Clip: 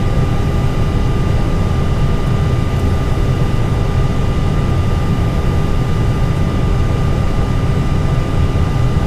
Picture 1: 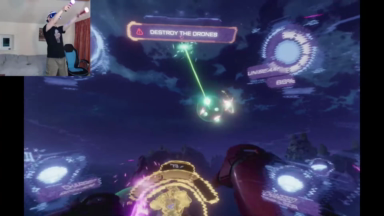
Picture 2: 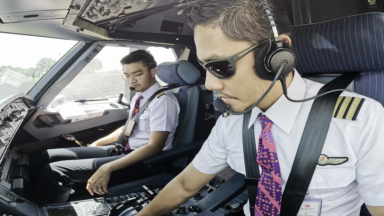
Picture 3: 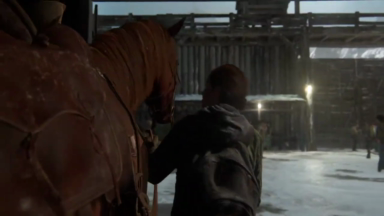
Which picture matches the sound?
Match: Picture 2